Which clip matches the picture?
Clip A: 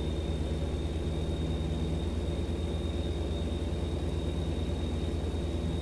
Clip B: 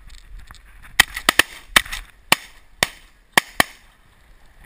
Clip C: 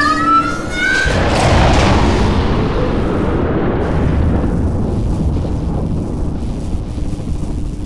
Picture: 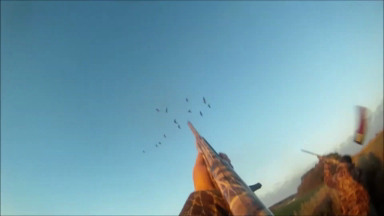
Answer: B